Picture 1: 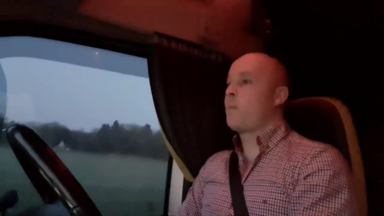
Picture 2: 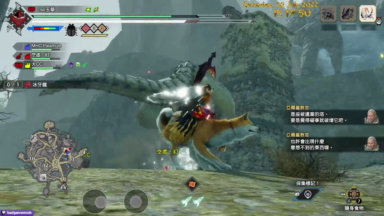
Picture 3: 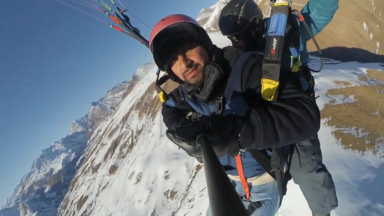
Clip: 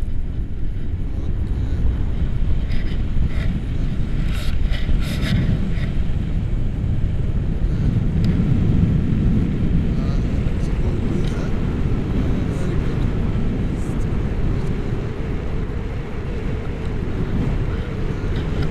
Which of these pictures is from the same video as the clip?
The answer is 3